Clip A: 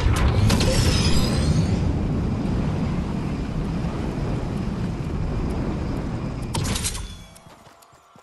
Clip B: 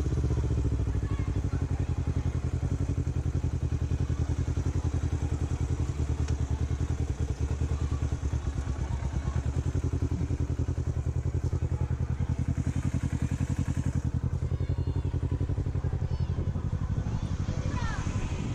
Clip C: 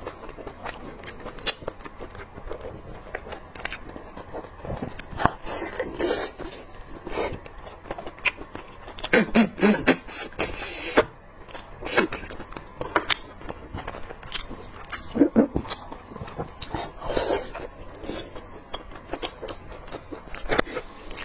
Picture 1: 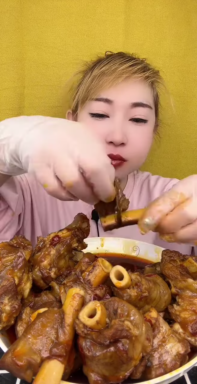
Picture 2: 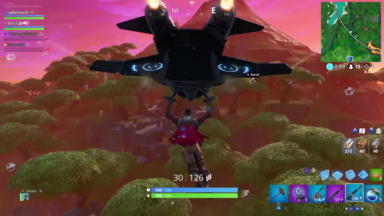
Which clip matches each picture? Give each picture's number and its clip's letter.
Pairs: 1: C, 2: A